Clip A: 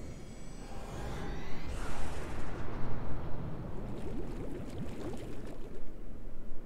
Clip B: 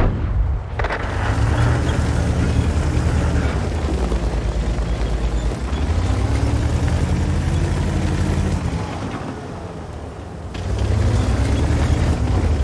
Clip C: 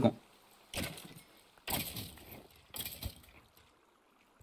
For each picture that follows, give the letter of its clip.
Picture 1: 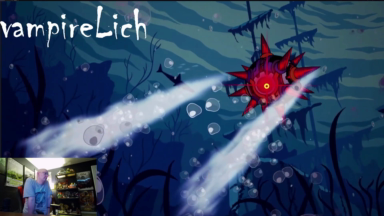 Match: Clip A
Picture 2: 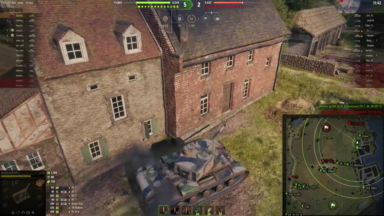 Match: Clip B